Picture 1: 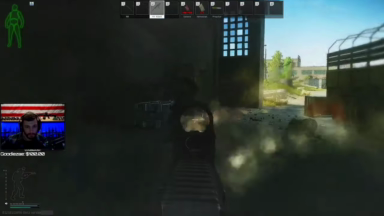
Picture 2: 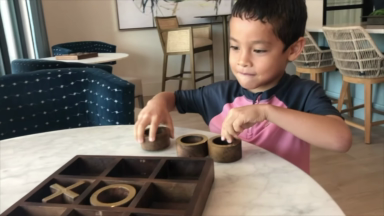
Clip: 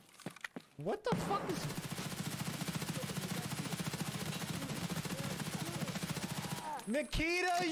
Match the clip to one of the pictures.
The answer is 1